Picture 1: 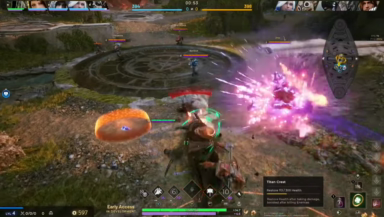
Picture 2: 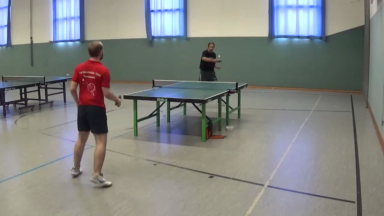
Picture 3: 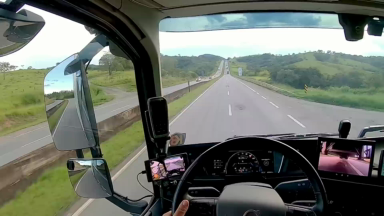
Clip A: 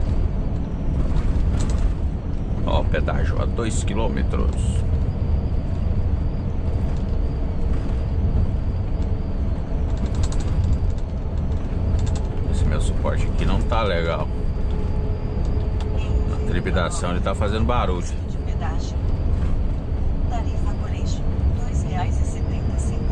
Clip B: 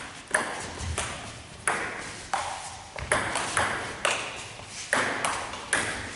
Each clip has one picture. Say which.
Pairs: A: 3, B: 2